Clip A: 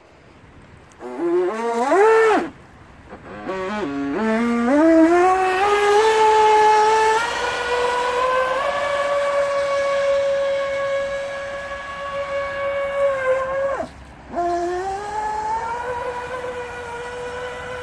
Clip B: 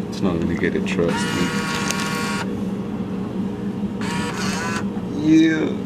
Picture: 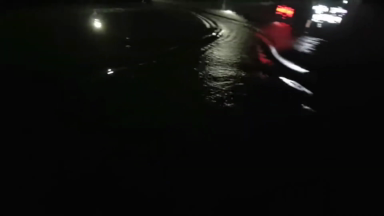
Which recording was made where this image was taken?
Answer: A